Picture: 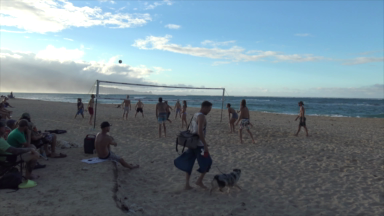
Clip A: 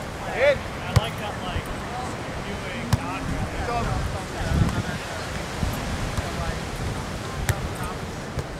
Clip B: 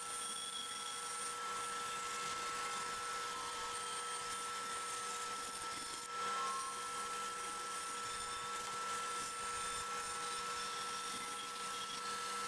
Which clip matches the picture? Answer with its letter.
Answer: A